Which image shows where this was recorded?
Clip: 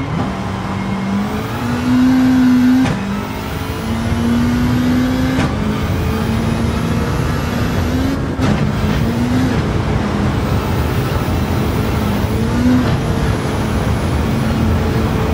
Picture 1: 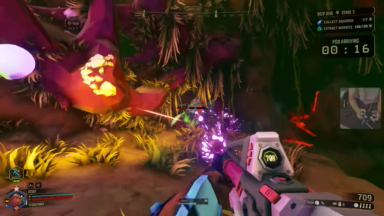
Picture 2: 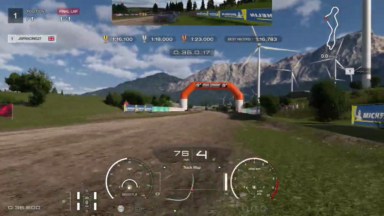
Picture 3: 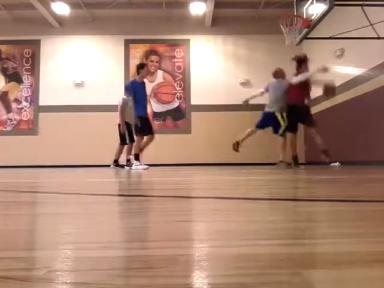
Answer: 2